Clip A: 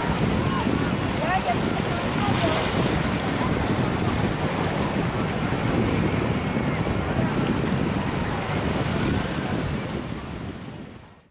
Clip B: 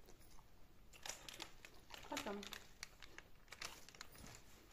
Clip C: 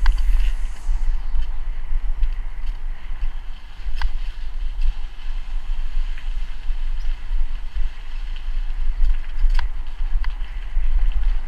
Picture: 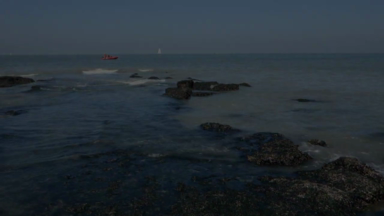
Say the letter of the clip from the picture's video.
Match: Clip A